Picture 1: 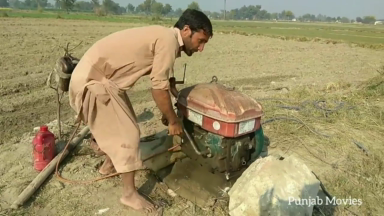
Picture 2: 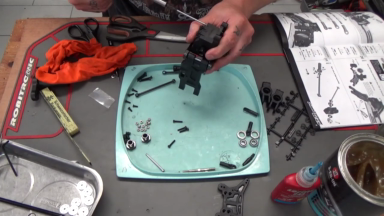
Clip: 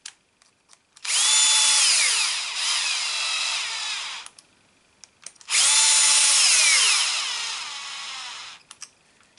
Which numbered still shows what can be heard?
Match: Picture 2